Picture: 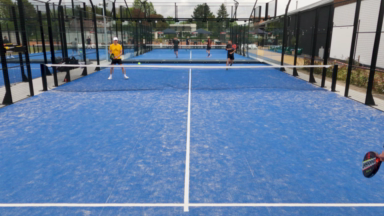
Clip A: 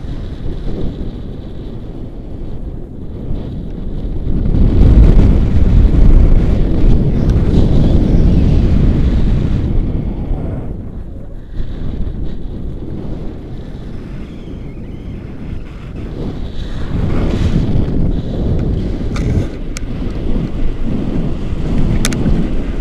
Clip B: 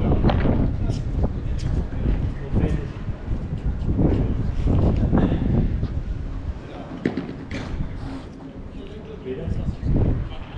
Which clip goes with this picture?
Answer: B